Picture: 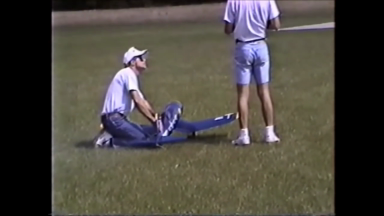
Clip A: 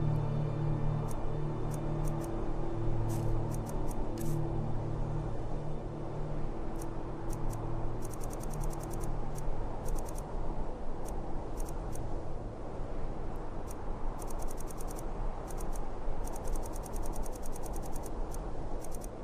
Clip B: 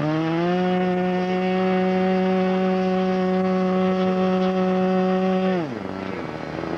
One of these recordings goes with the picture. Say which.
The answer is B